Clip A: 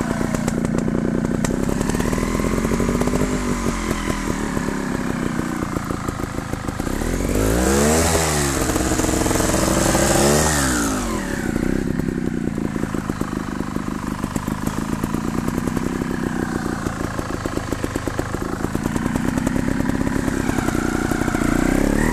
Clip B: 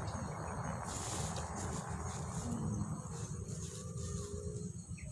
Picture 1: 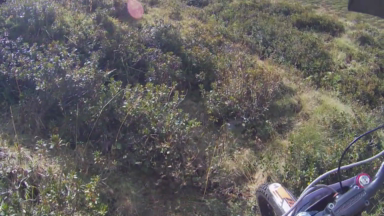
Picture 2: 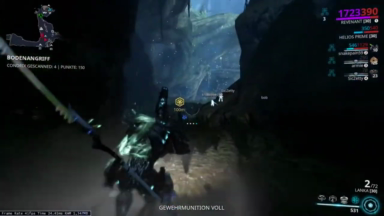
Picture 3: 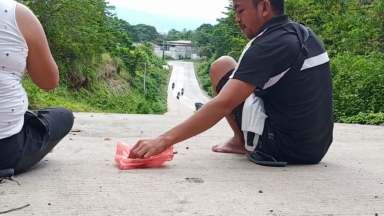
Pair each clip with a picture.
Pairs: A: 1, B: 3